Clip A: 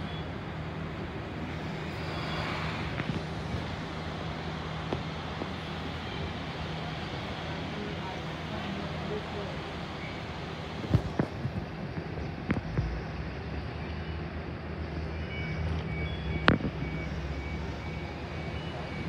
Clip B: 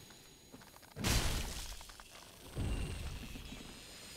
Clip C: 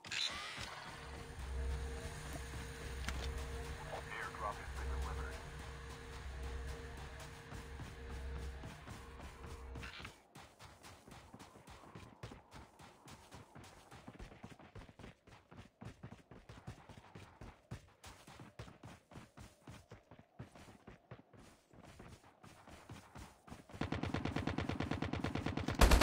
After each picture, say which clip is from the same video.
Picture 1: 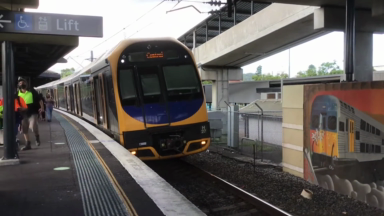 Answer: A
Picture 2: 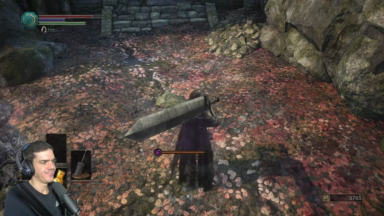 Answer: B